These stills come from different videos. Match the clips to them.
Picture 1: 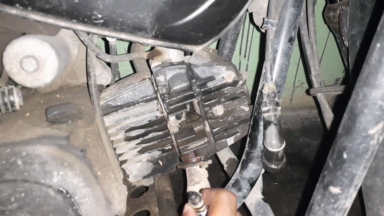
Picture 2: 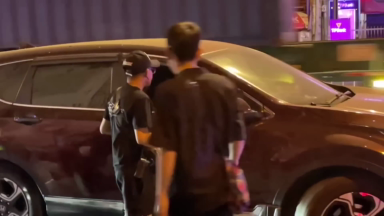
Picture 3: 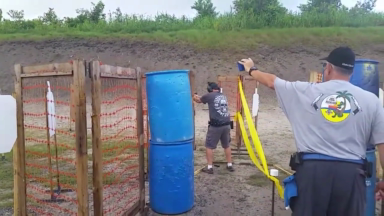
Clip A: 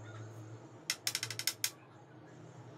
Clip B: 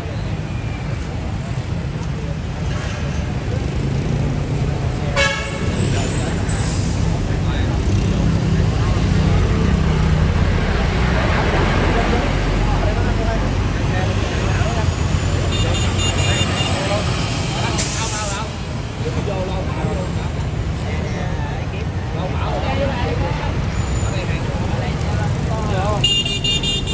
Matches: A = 1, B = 2